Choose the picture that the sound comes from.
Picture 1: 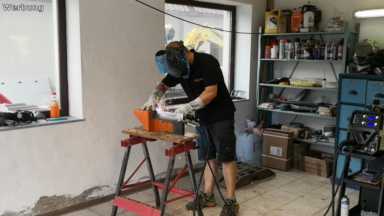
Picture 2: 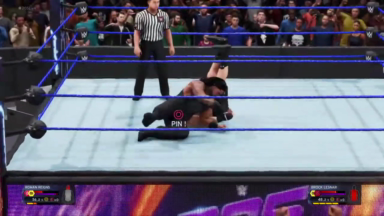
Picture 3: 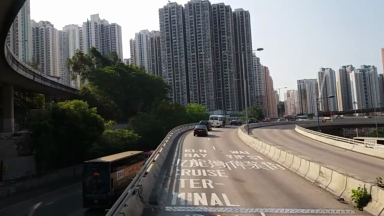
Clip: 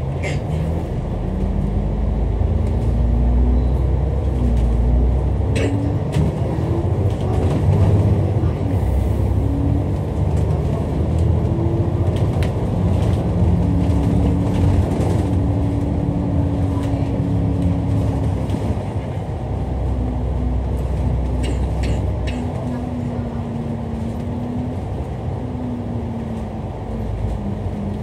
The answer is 3